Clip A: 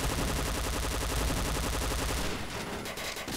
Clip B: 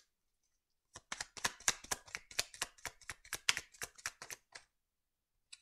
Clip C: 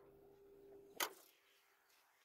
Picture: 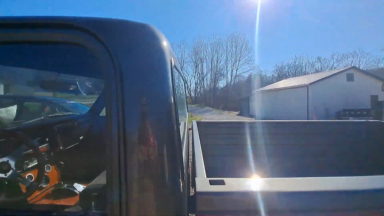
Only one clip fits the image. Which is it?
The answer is C